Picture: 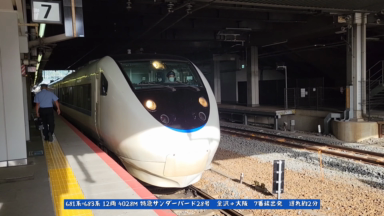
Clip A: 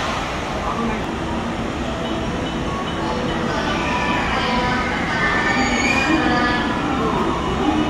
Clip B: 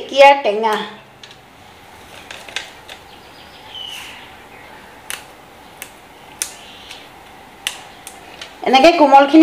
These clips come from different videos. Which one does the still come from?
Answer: A